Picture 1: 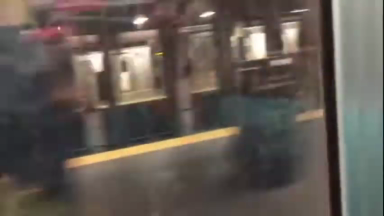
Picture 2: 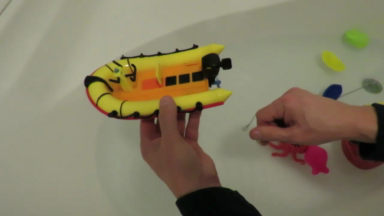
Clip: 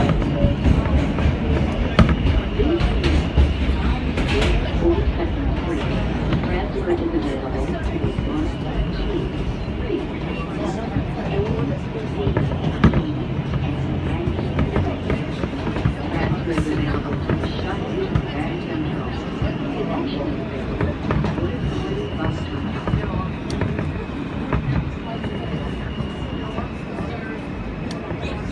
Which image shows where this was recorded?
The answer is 1